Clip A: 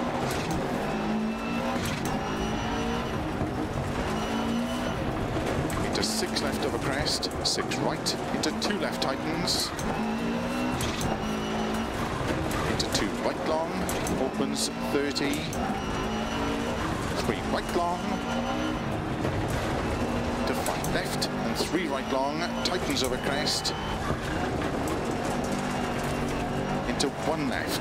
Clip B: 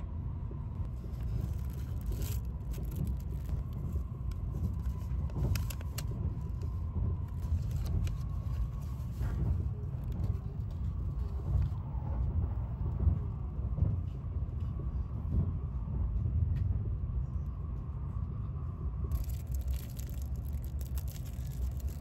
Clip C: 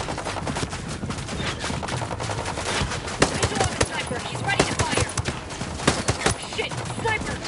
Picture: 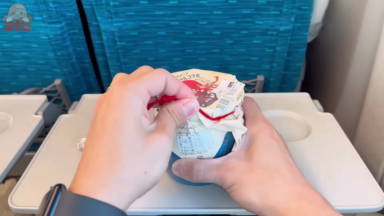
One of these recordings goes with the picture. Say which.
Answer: B